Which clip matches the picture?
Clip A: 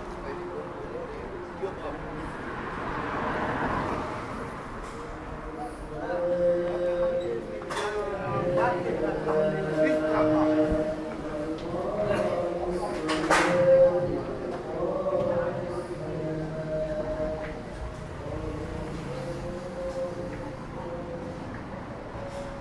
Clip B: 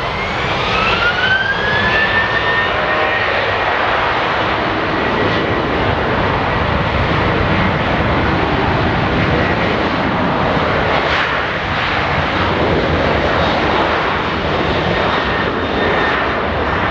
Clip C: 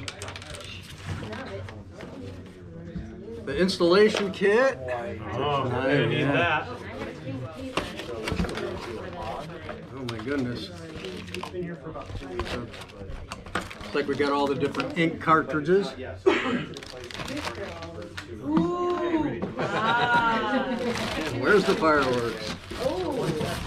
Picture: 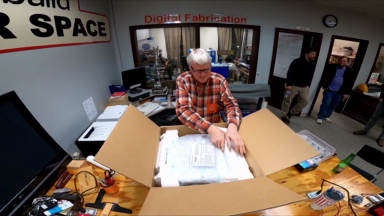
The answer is C